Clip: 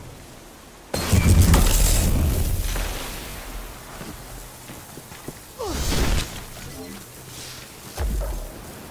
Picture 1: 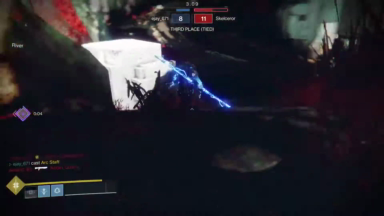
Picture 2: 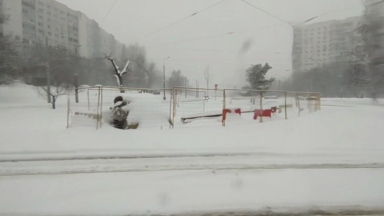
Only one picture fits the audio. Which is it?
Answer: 1